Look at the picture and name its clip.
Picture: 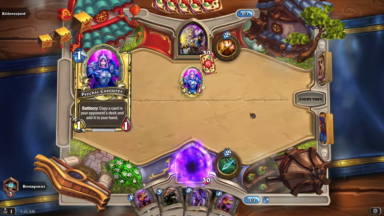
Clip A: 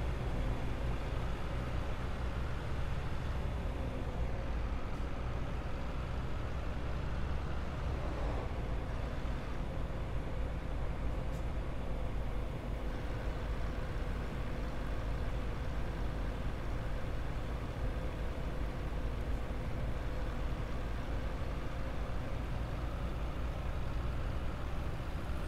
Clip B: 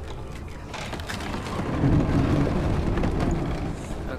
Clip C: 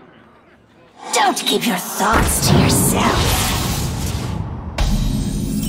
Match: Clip C